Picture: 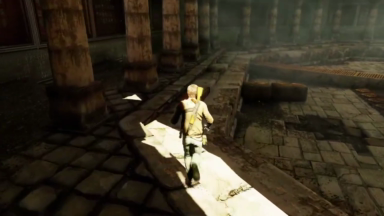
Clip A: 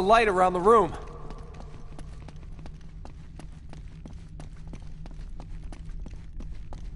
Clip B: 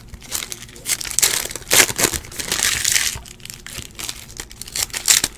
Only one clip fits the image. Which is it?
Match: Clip A